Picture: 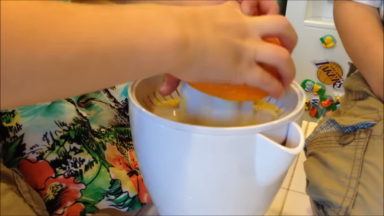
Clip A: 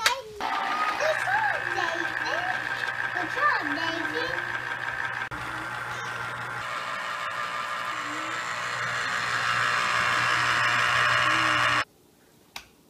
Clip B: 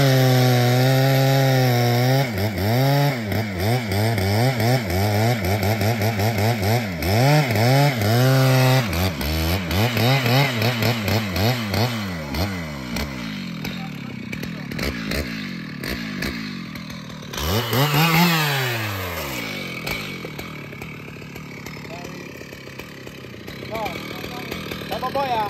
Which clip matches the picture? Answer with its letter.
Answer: A